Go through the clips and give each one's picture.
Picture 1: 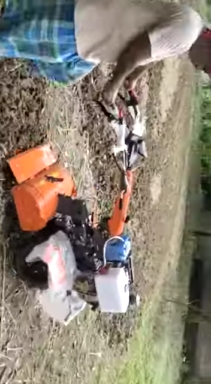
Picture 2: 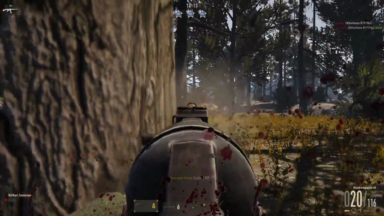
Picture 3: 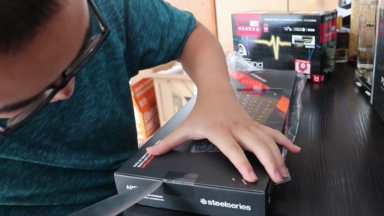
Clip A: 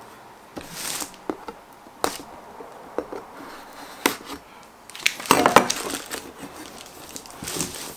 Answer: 3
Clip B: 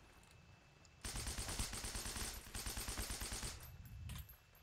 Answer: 2